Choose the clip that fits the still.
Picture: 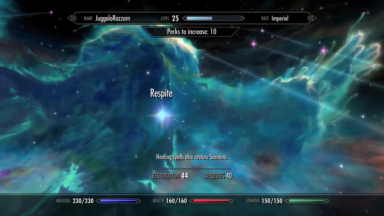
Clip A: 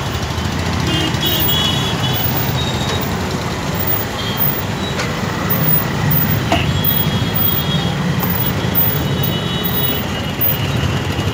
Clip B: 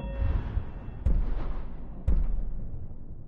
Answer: B